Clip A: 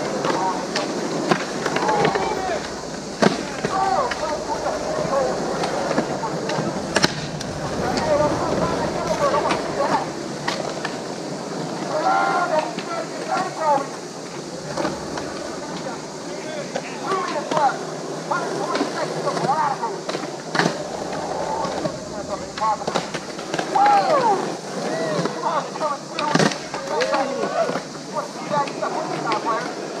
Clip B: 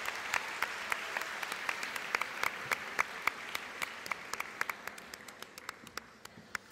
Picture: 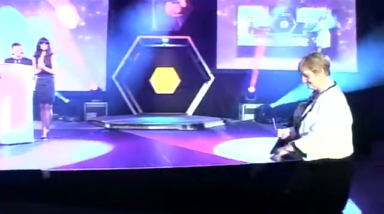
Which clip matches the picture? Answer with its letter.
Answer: B